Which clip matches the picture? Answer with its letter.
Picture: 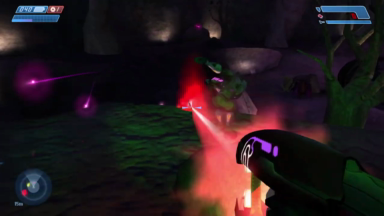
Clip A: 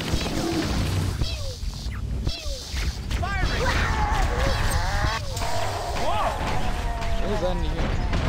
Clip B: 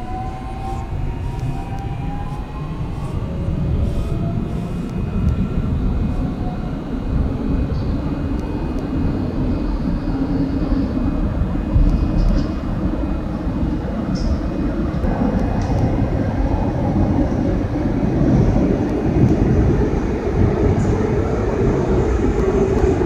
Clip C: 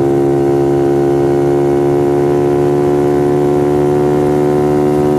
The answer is A